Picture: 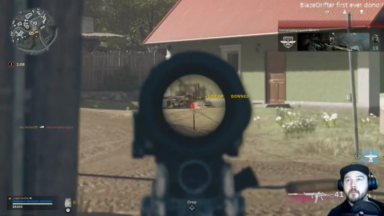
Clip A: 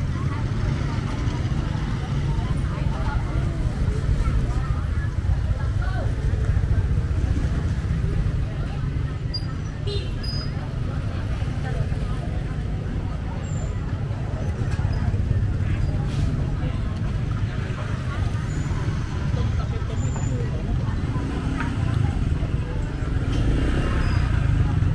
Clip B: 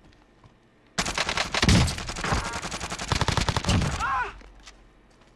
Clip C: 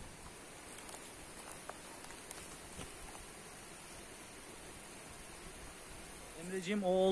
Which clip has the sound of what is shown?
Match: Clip B